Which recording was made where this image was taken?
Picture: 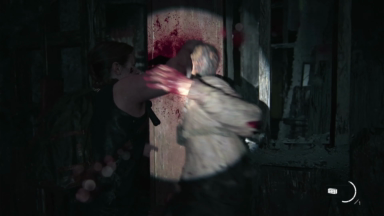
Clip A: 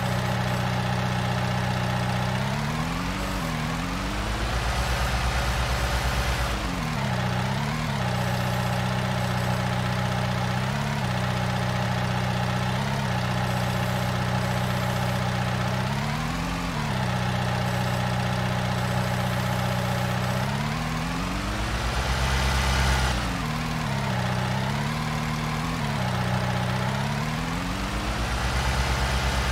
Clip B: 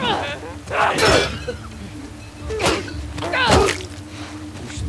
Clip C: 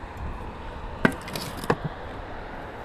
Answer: B